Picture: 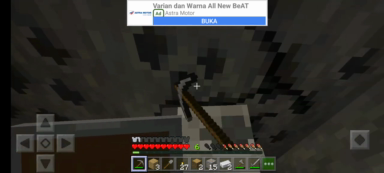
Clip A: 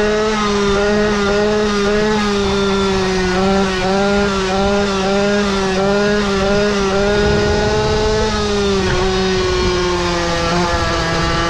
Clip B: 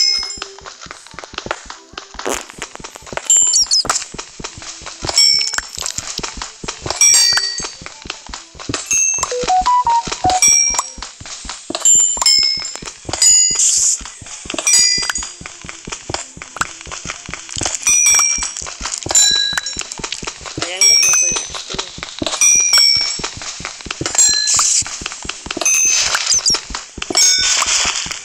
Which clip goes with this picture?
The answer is B